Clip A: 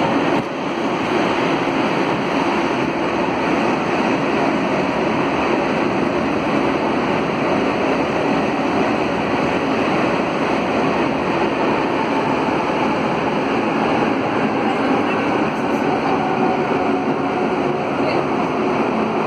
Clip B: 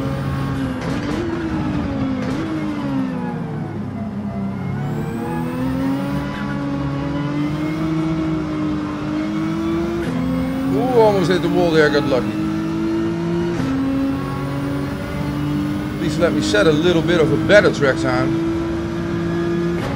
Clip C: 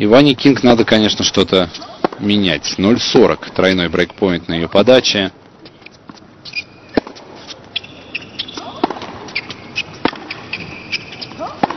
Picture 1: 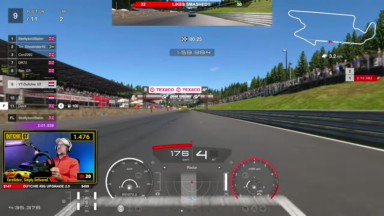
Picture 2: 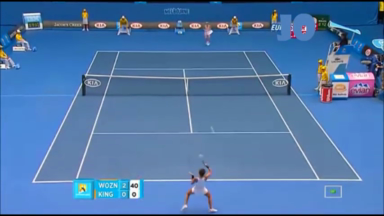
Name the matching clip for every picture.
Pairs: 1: B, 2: C